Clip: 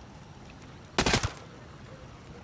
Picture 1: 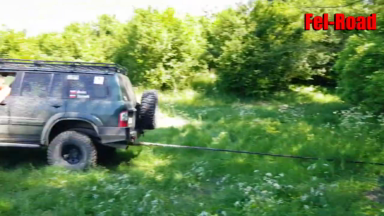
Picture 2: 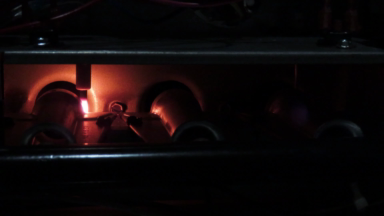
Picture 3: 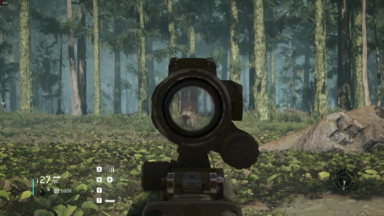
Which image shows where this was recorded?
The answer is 3